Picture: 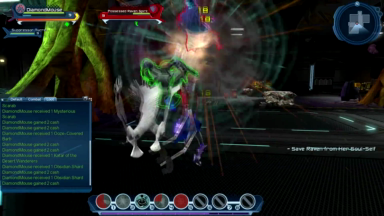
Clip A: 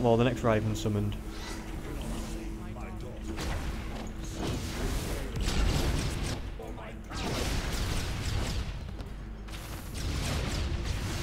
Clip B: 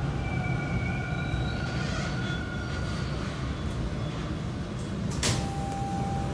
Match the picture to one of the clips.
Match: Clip A